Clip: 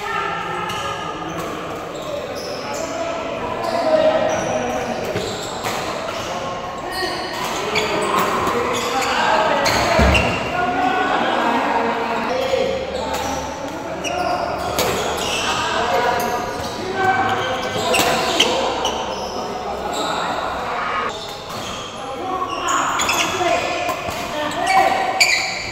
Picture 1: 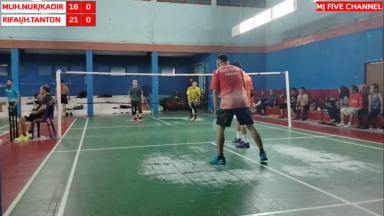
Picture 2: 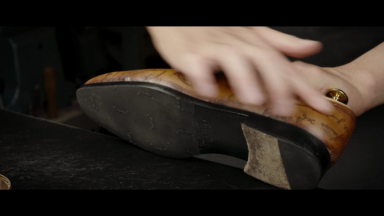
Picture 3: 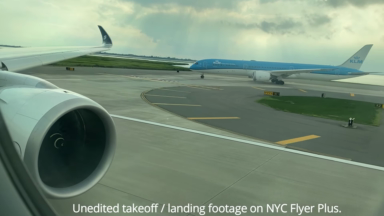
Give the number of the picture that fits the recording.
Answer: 1